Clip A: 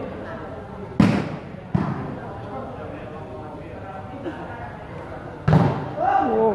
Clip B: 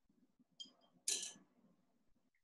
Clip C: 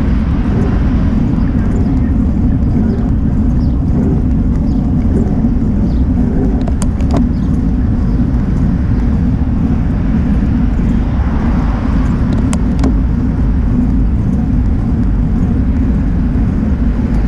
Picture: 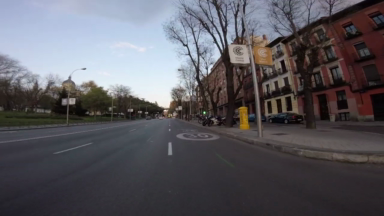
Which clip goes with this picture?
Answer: C